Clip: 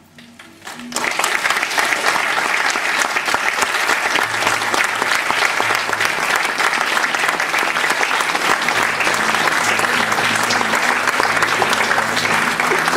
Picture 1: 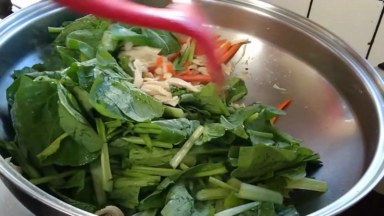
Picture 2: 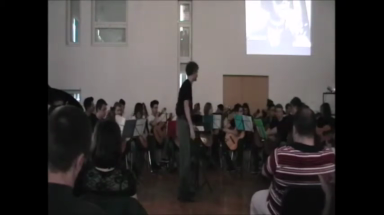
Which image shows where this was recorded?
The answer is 2